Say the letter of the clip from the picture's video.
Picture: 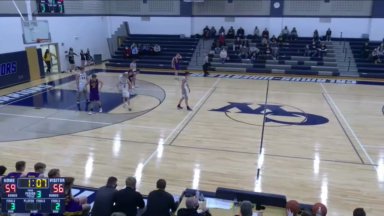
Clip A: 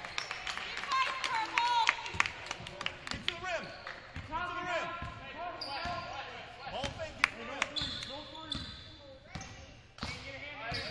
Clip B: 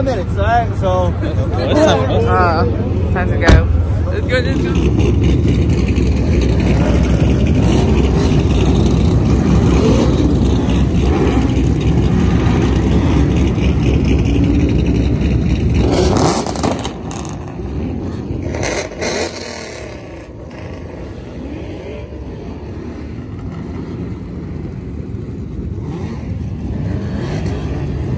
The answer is A